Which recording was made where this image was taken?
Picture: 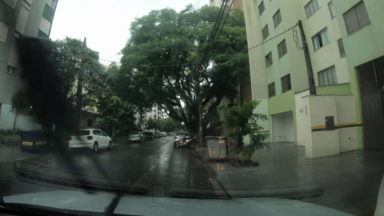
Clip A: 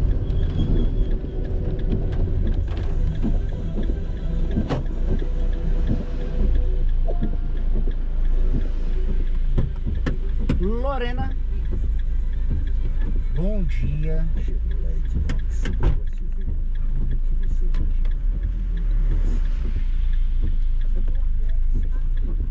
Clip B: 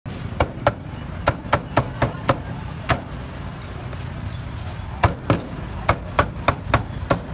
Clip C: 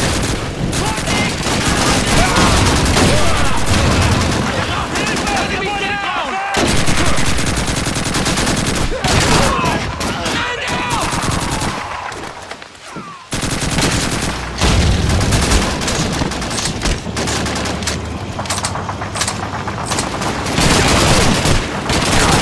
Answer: A